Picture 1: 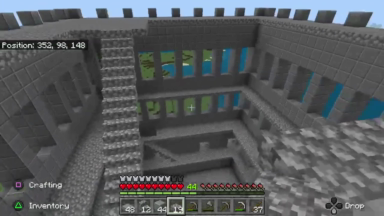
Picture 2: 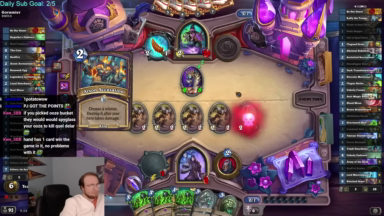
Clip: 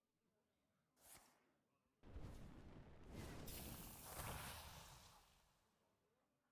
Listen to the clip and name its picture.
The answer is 2